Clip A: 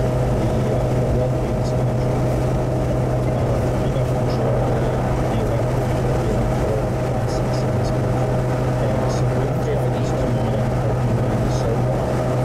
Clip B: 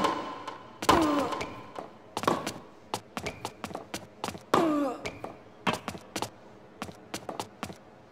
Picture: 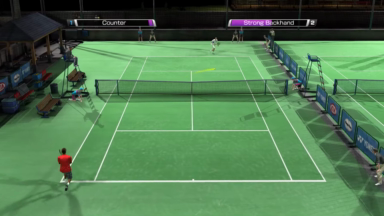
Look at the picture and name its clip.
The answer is B